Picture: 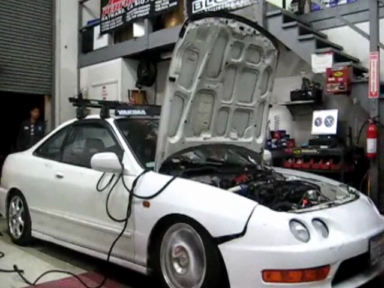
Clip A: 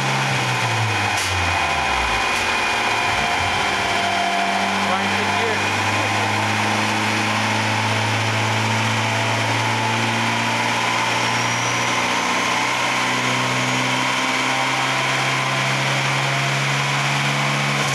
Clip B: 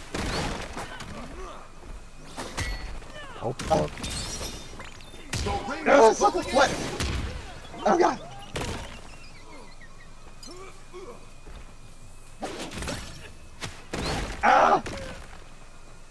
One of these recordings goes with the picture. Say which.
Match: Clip A